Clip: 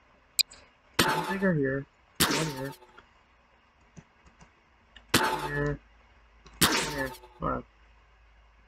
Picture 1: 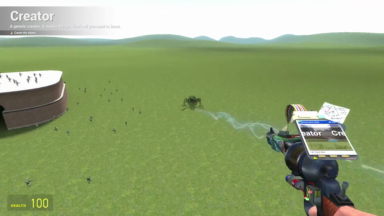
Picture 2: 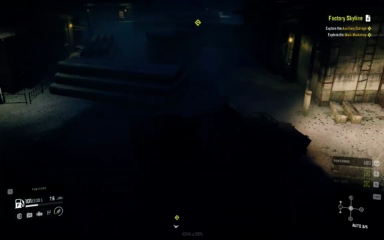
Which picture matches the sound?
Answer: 1